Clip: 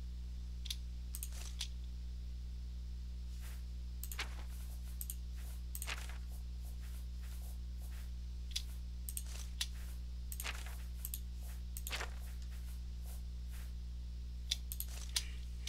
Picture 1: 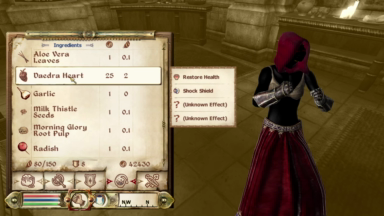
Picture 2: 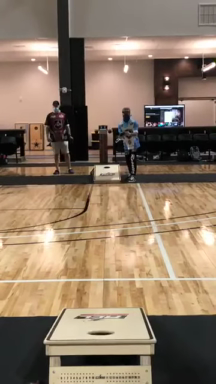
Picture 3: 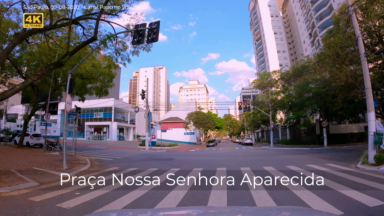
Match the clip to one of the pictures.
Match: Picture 1